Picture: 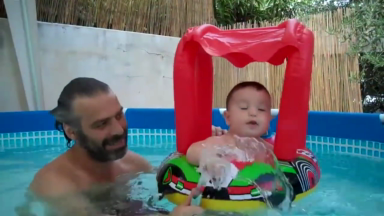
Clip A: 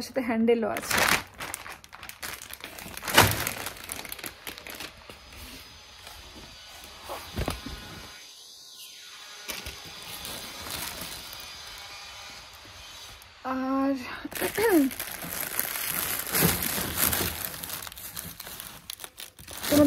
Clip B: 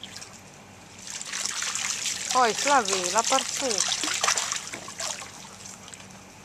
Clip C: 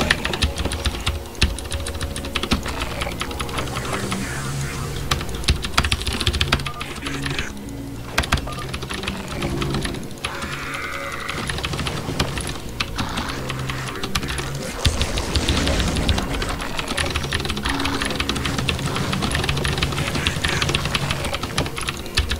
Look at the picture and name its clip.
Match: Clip B